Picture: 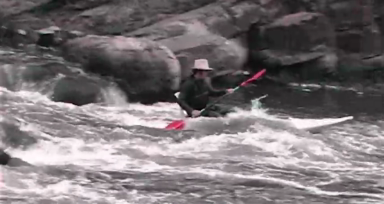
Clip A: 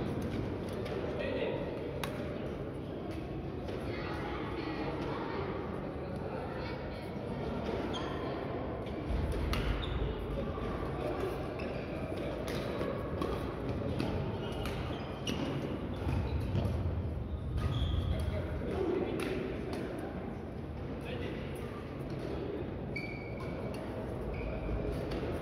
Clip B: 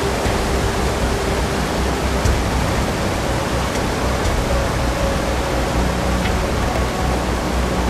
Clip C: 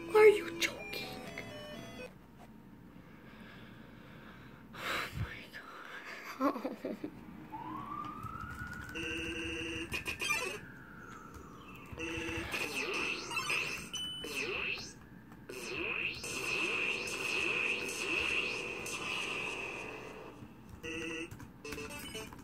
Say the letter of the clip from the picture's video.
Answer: B